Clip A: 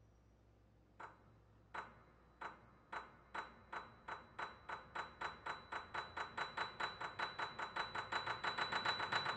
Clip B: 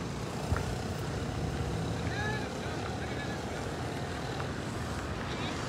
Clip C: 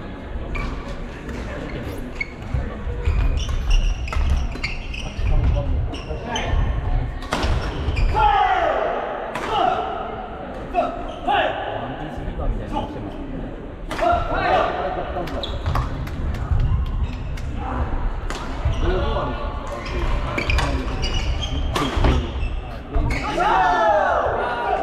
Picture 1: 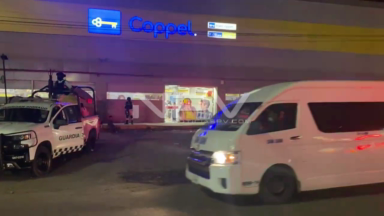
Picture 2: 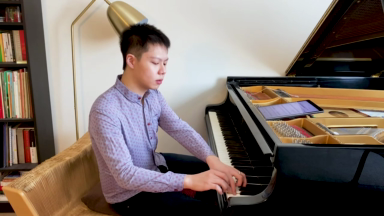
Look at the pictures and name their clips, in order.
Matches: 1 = B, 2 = A